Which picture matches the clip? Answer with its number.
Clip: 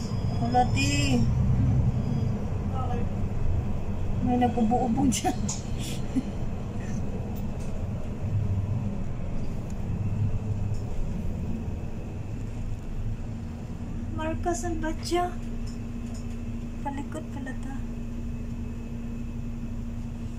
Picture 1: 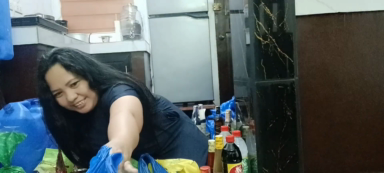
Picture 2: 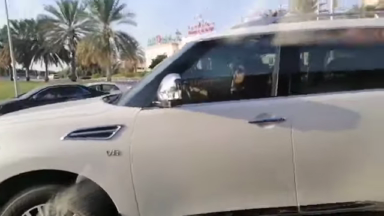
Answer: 2